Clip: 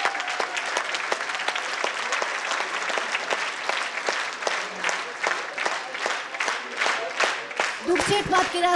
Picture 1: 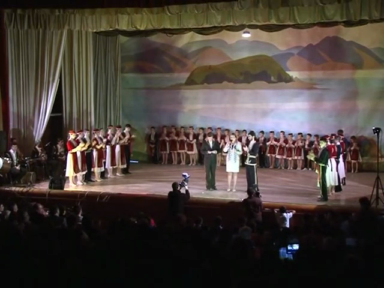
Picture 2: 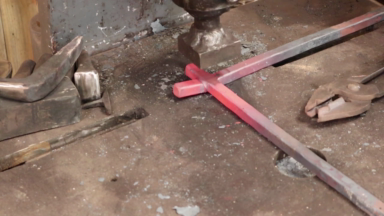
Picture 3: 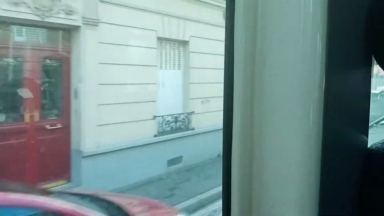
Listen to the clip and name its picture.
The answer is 1